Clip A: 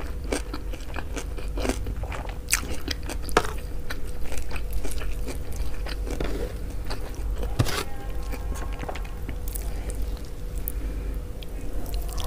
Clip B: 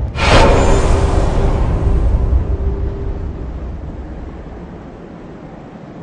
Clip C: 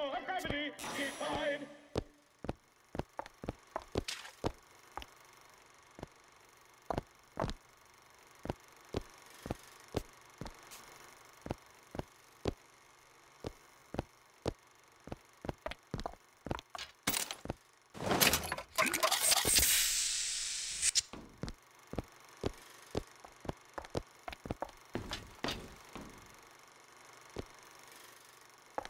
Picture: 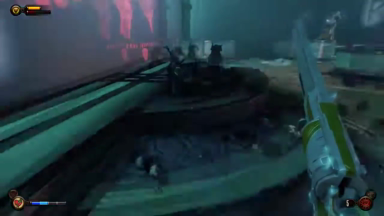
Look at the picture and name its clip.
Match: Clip C